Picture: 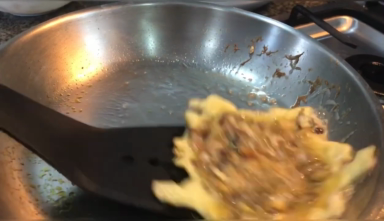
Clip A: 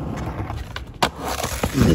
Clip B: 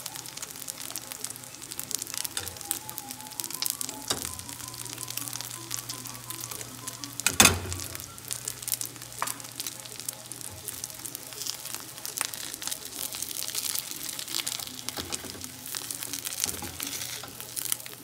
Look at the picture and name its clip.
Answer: B